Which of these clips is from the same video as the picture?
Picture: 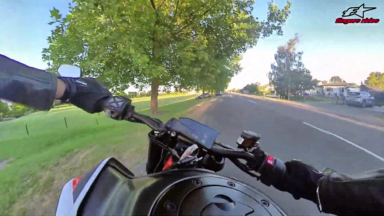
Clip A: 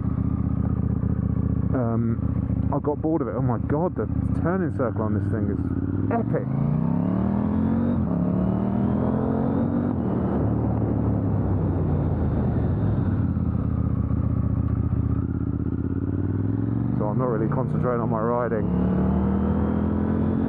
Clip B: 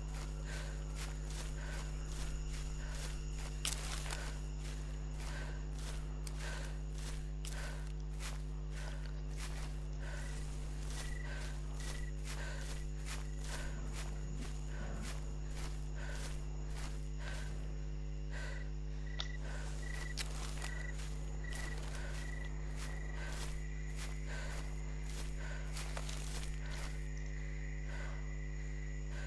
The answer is A